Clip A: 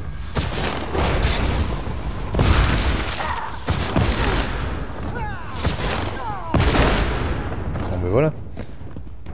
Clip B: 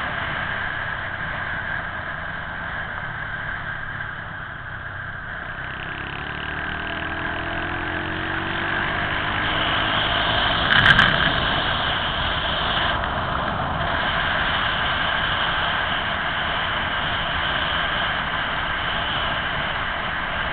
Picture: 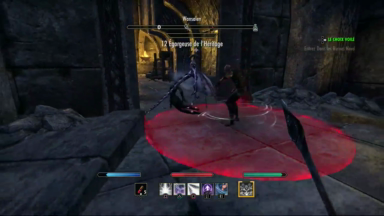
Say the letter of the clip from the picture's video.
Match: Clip A